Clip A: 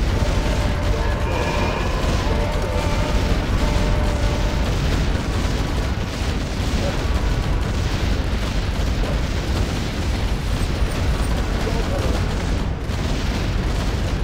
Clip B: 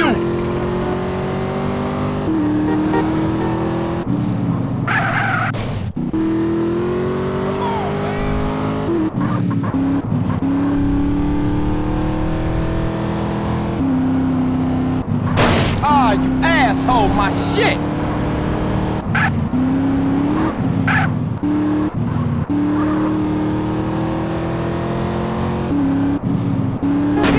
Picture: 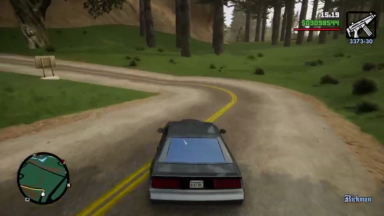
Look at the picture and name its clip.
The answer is B